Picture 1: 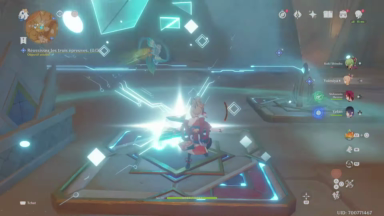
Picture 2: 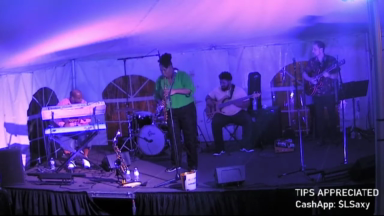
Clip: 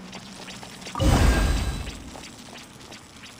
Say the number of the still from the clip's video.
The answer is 1